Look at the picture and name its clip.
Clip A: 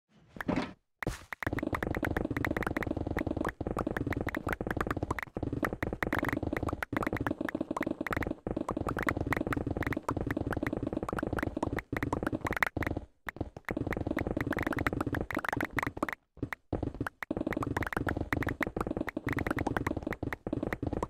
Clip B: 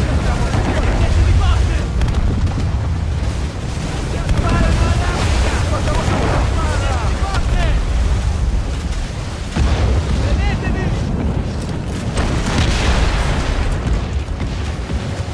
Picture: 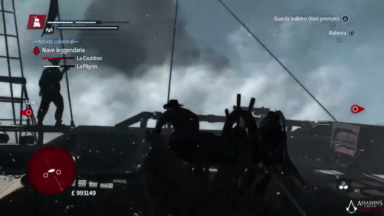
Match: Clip B